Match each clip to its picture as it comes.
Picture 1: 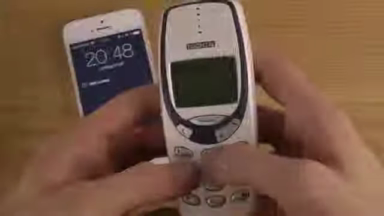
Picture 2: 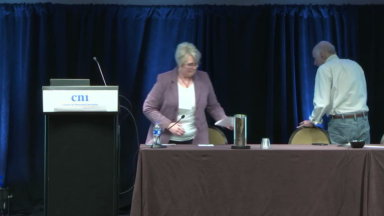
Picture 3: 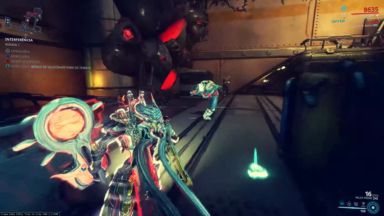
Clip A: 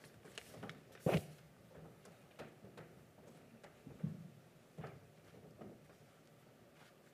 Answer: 2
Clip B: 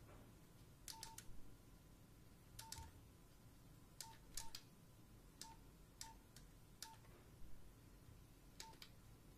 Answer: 1